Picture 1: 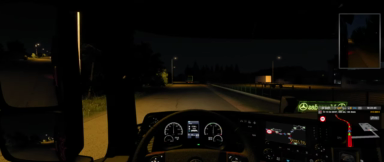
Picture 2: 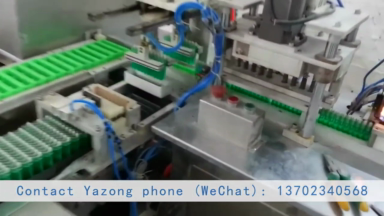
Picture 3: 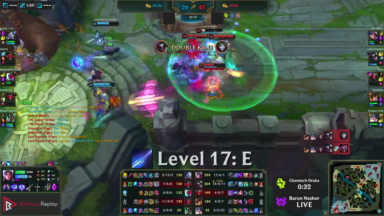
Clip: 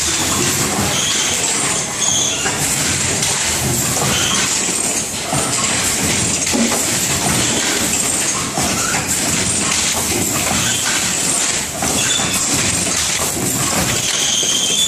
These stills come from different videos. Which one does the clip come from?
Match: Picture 2